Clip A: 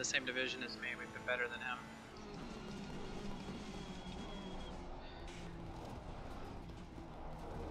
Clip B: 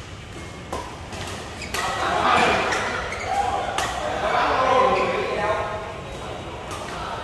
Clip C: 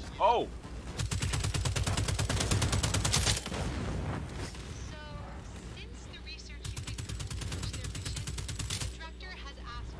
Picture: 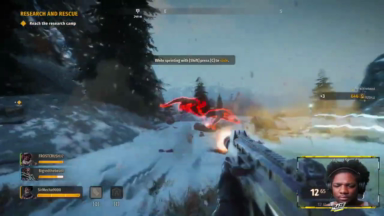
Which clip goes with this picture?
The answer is C